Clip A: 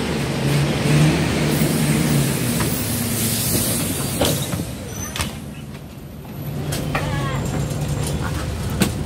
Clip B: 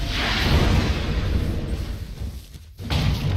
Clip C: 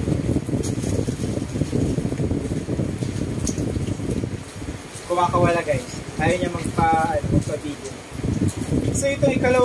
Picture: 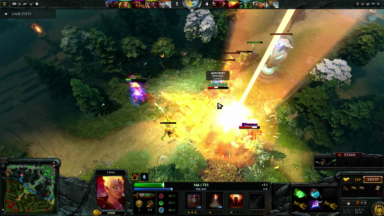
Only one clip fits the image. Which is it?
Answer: B